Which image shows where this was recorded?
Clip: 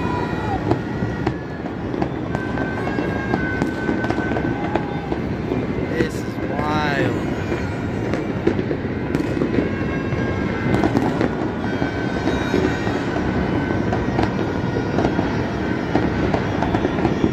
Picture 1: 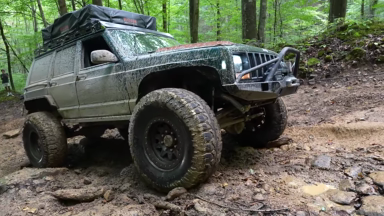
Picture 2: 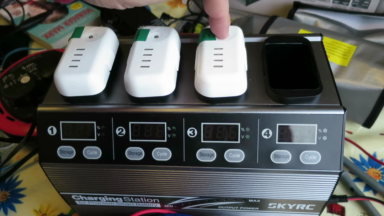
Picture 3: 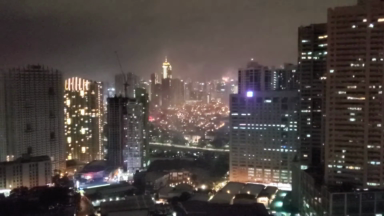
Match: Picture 3